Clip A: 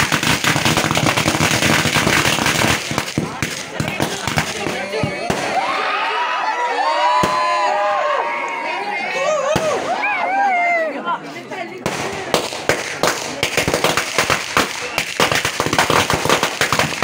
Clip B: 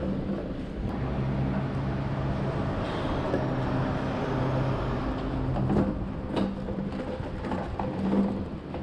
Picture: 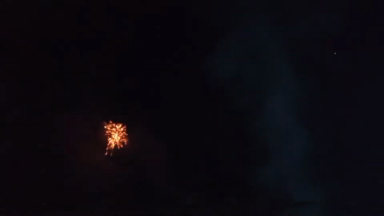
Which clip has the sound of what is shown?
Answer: A